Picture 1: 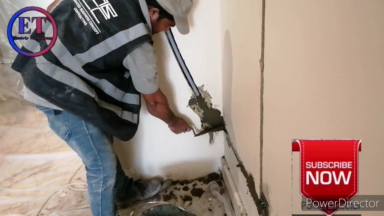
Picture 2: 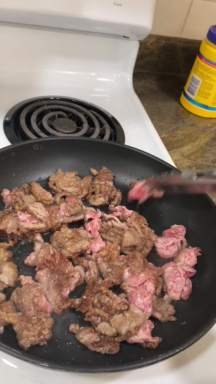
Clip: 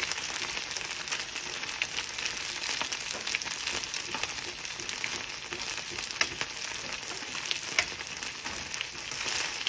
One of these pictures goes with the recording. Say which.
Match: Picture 2